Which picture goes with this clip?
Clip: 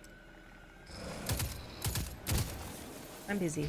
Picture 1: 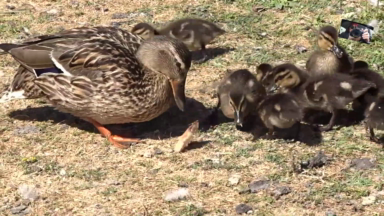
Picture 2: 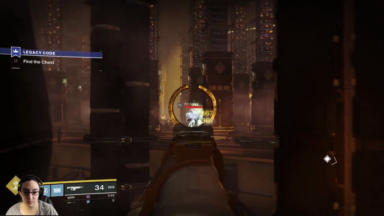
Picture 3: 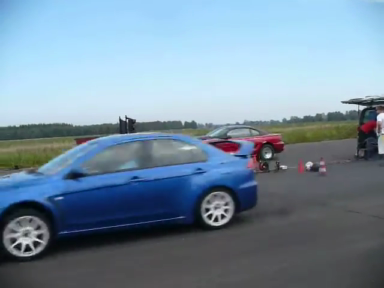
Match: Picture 2